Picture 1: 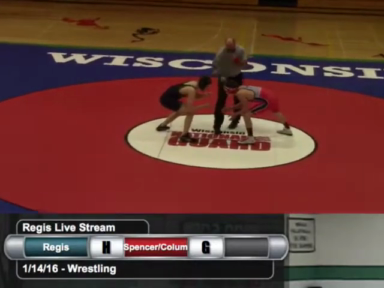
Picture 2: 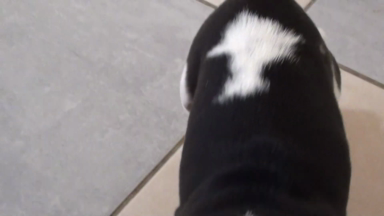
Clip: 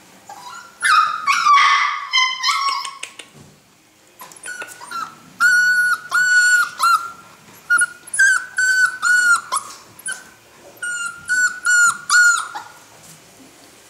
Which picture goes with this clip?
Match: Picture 2